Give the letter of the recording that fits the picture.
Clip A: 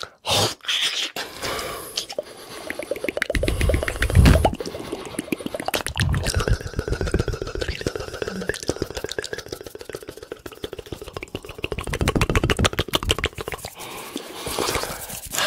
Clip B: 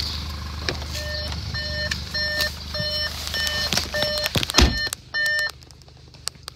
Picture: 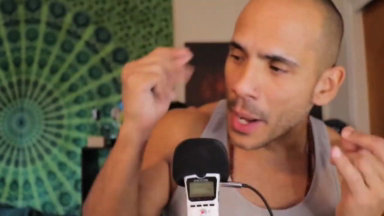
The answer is A